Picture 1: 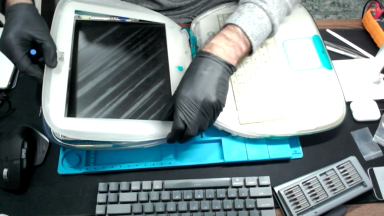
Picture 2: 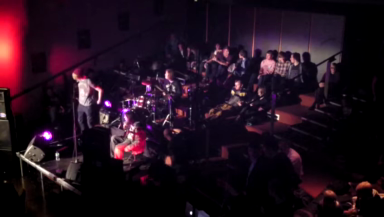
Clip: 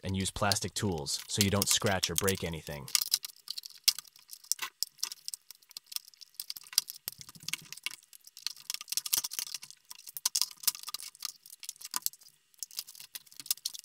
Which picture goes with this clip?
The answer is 1